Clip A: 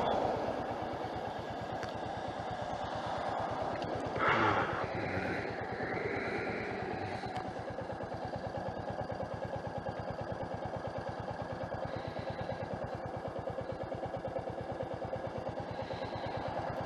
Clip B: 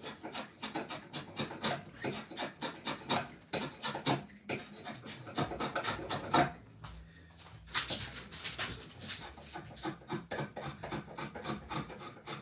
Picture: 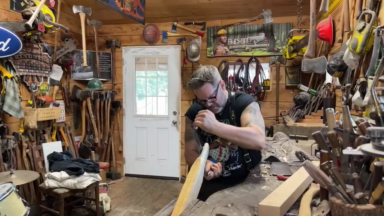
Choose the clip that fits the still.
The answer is B